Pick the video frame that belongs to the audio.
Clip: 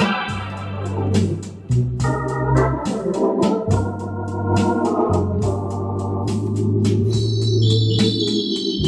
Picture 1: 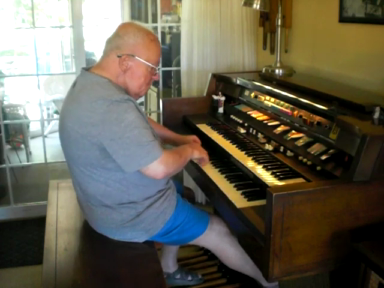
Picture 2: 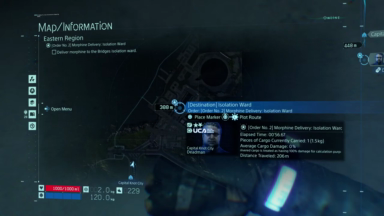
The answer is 1